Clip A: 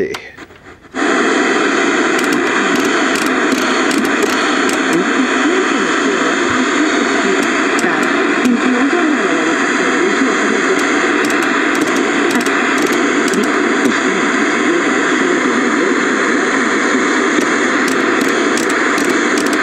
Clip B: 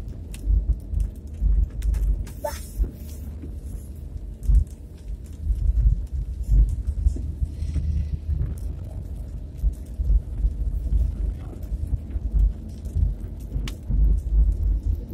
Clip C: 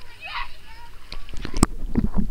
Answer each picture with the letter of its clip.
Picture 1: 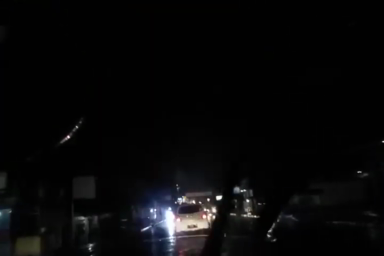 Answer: B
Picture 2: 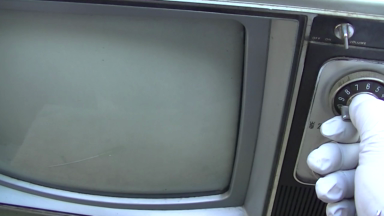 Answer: A